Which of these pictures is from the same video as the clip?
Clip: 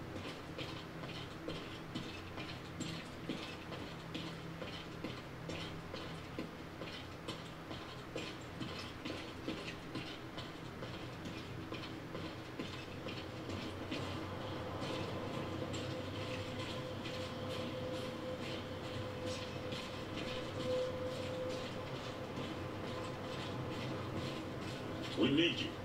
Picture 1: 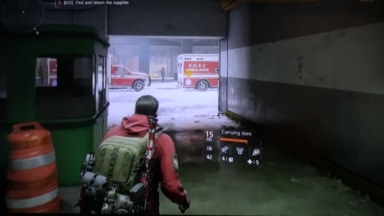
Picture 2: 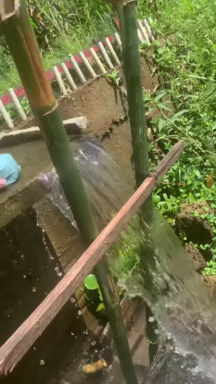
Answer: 1